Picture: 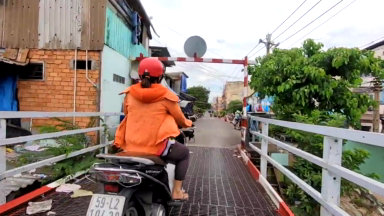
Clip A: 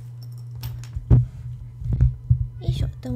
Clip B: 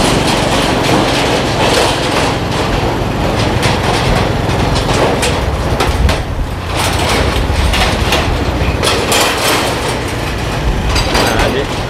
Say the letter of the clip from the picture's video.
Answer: B